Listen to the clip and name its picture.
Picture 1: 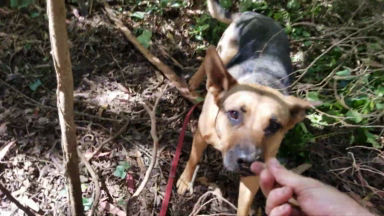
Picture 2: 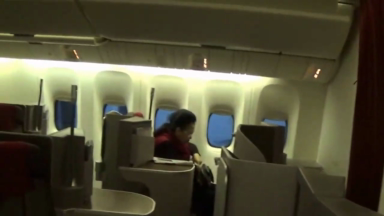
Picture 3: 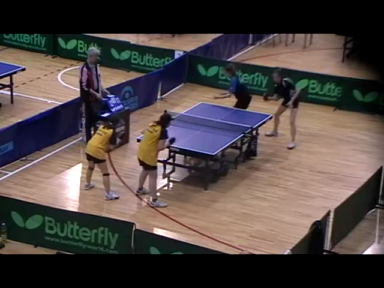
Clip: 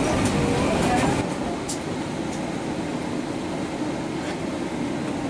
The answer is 2